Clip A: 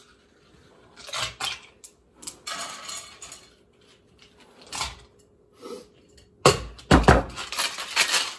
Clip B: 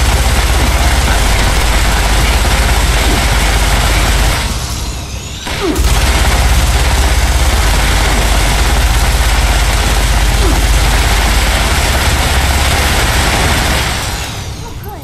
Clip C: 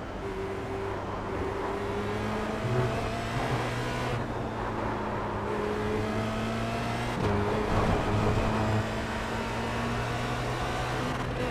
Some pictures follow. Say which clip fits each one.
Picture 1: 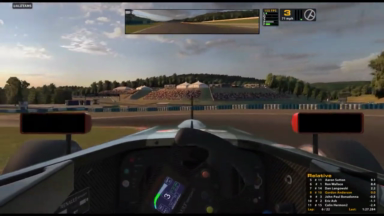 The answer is C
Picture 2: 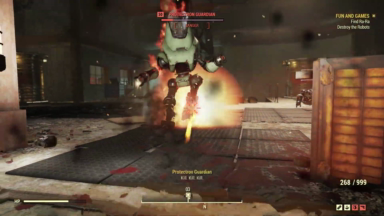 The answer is B